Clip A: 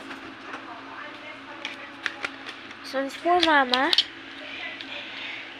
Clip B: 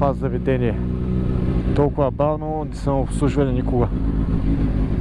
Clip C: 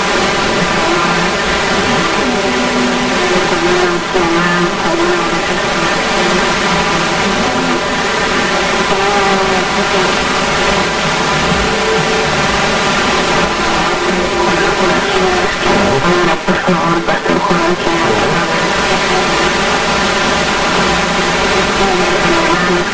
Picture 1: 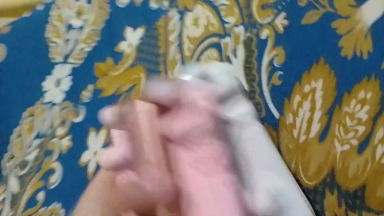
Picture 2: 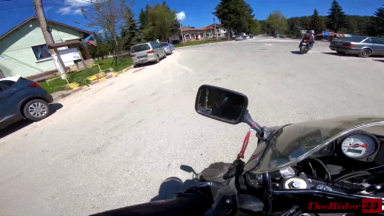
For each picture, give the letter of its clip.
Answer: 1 A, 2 B